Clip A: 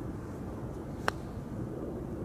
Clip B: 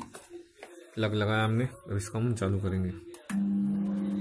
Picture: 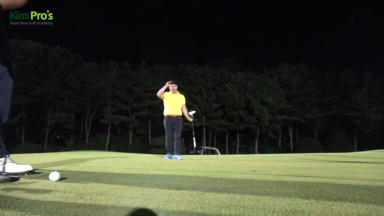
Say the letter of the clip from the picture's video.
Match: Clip A